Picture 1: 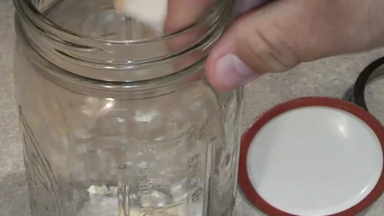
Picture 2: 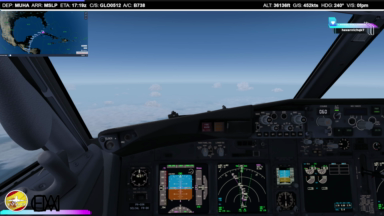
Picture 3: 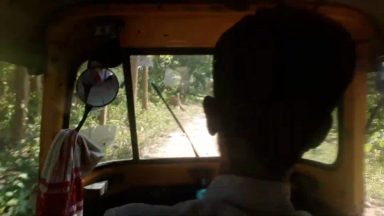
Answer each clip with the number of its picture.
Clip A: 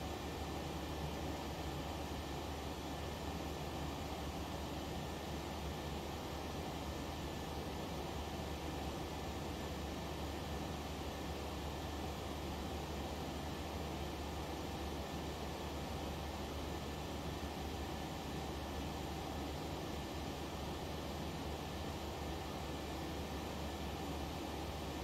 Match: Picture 2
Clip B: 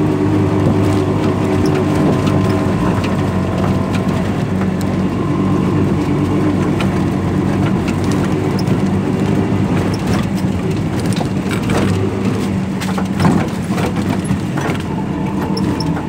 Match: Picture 3